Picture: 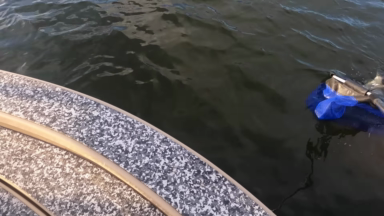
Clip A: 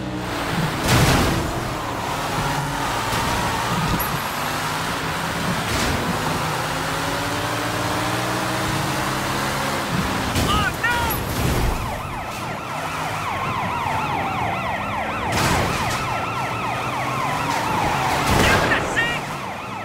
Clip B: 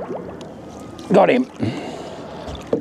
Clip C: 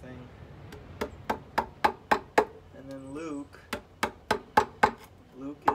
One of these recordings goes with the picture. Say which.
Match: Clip B